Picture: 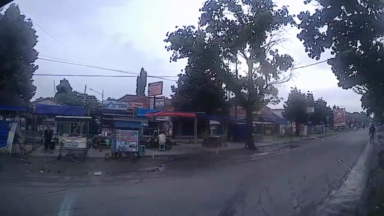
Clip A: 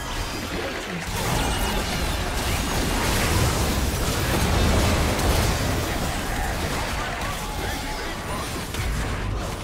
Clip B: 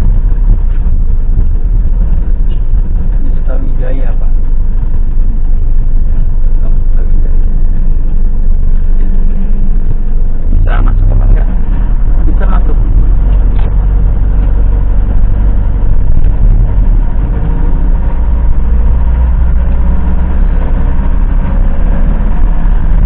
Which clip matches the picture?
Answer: B